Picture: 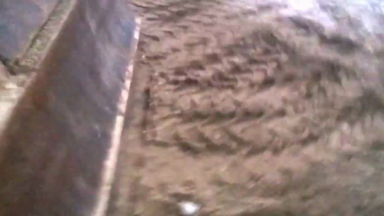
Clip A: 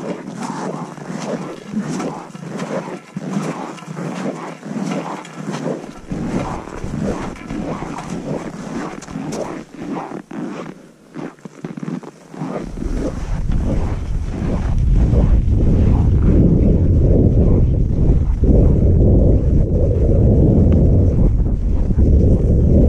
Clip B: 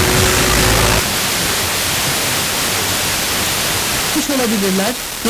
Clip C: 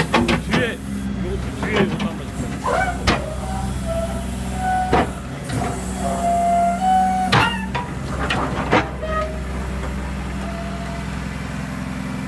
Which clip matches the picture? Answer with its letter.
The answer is C